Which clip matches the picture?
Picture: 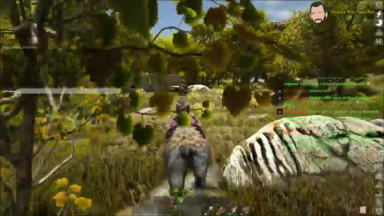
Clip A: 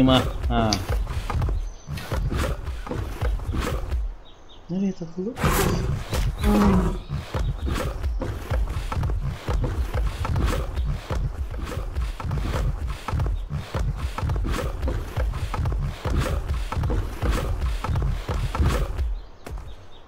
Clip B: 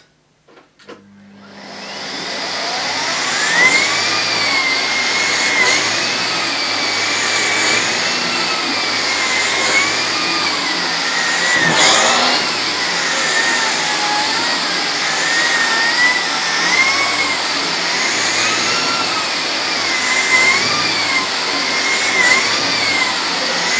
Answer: A